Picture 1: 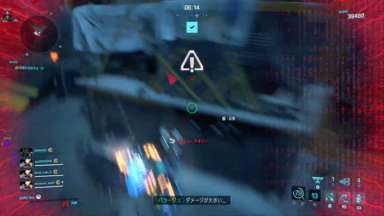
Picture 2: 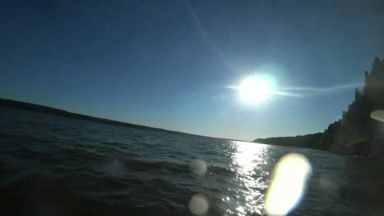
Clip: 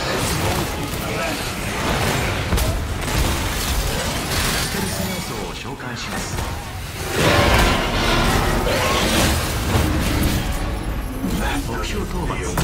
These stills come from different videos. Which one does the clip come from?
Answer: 1